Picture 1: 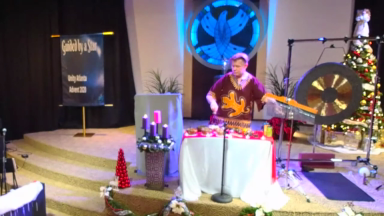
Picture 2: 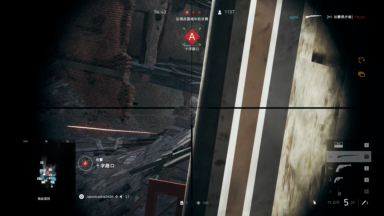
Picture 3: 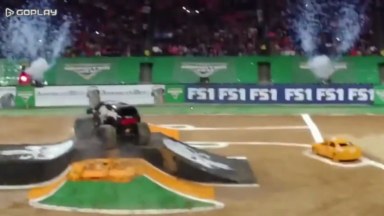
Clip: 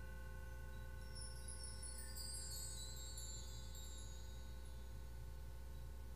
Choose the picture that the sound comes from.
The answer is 1